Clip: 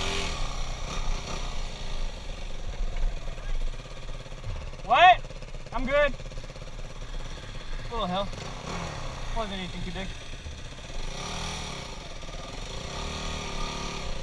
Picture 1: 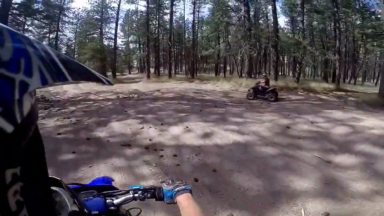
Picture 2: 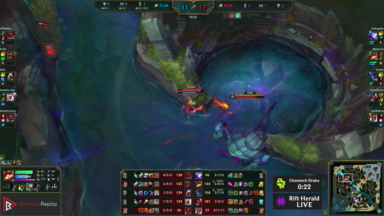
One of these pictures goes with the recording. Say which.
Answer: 1